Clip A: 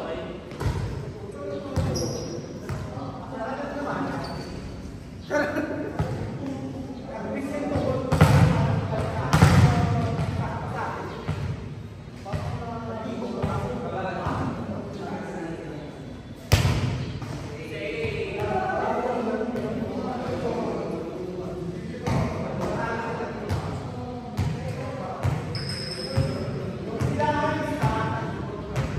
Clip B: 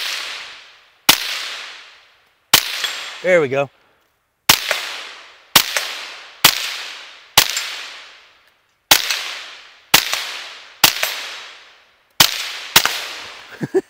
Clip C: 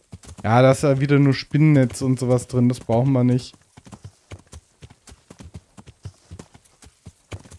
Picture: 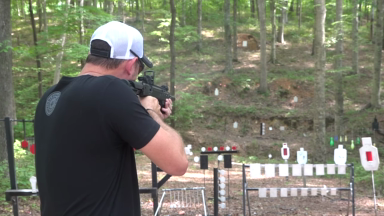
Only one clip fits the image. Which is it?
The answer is B